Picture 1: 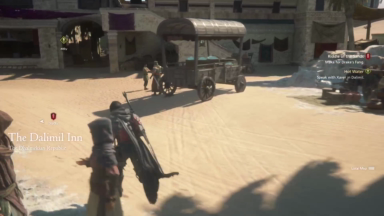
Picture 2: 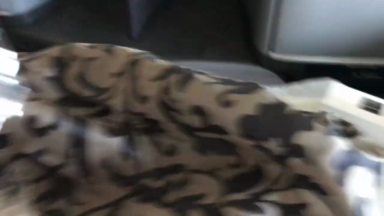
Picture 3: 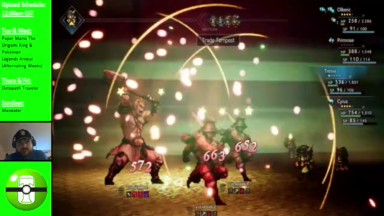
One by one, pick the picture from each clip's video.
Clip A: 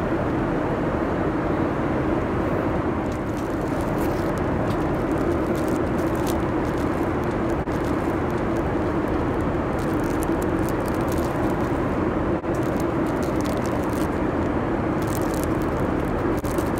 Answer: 2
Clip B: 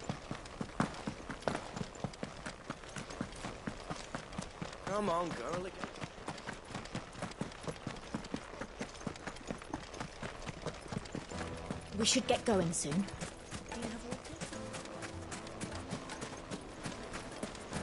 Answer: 1